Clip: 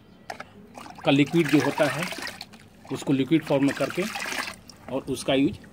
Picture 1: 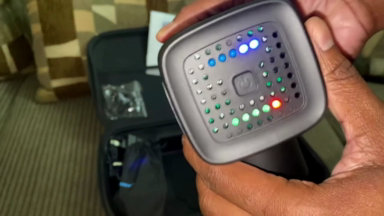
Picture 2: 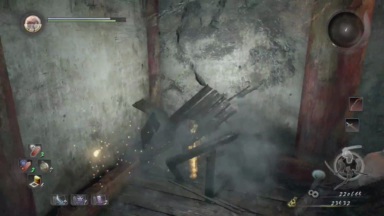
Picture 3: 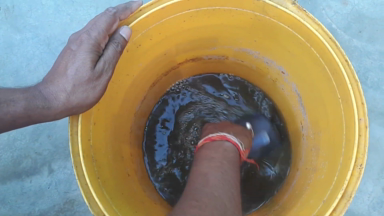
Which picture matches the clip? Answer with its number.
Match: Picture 3